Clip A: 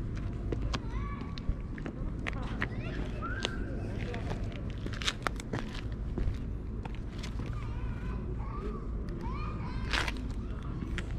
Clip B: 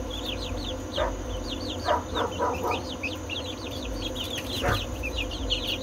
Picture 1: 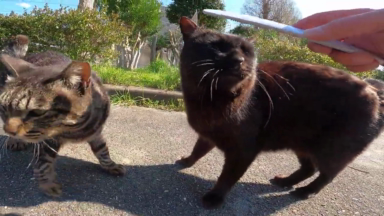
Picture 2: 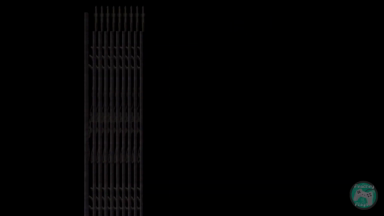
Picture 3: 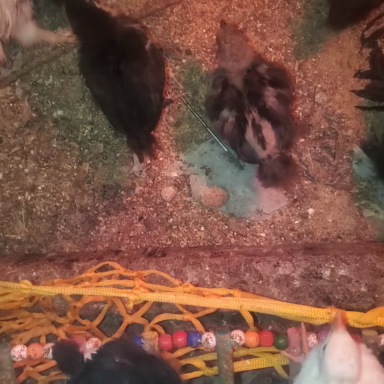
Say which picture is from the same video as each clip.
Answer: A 1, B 3